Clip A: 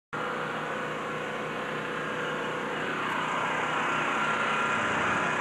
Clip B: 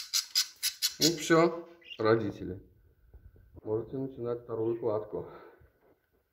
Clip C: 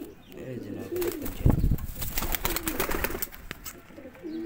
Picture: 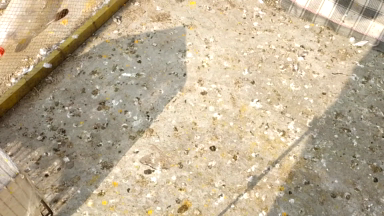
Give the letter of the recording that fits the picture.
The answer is C